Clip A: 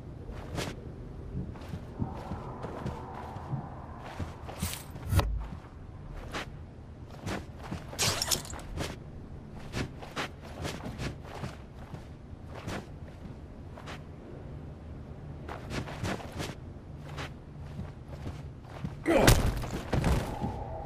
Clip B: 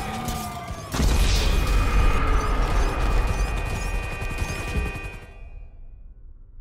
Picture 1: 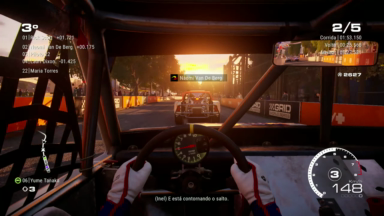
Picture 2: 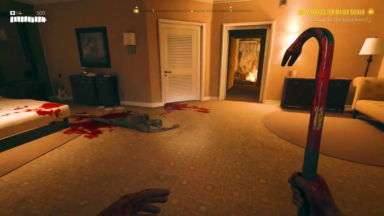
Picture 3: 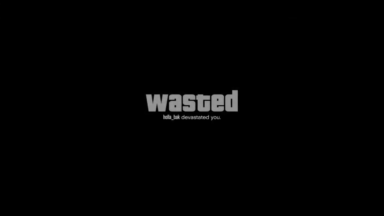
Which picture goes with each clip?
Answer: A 2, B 3